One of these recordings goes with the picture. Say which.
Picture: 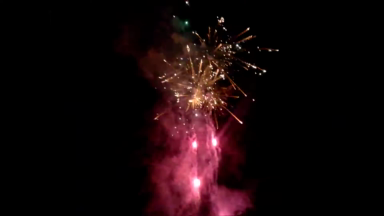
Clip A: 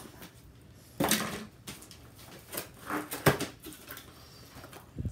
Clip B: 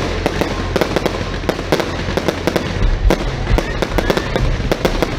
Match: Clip B